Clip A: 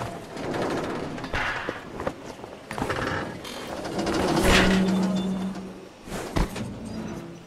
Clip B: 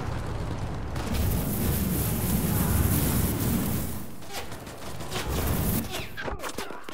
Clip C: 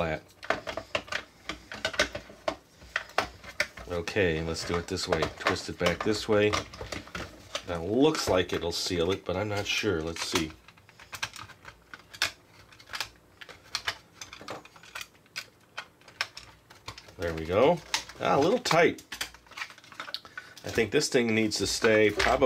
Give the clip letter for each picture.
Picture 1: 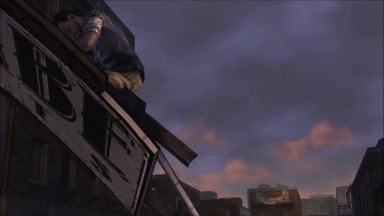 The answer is A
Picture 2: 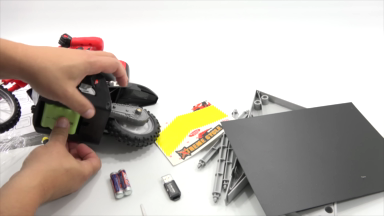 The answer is C